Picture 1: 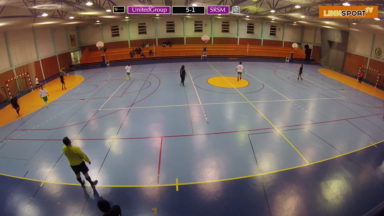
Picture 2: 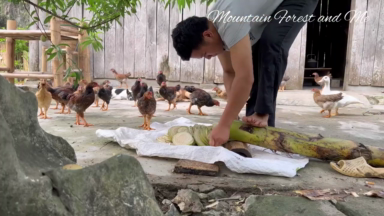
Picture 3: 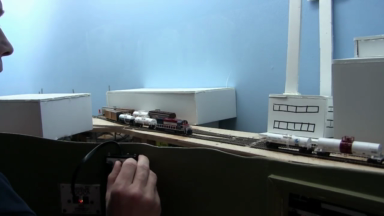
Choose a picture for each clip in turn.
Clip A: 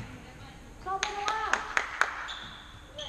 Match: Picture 1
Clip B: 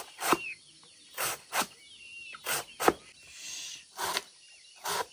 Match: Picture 2